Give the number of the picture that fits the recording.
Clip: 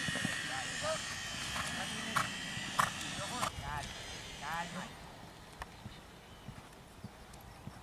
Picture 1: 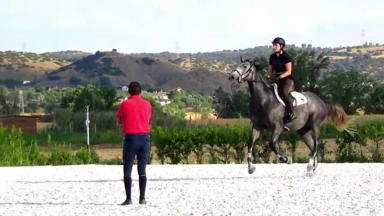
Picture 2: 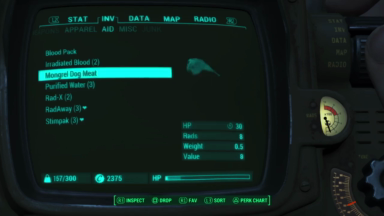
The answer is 1